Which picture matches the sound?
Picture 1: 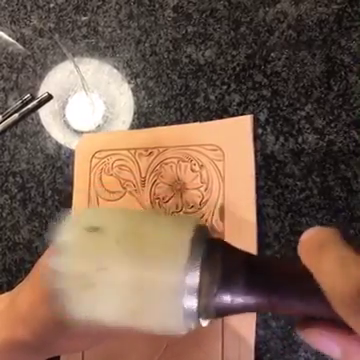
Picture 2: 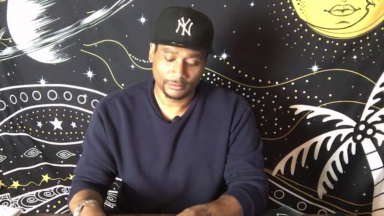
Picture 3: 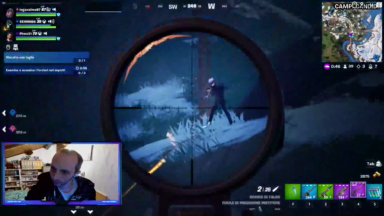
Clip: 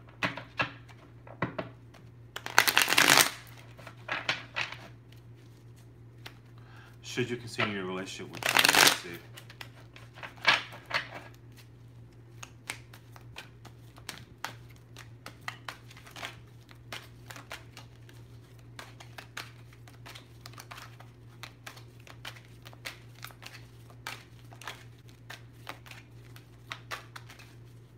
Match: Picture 2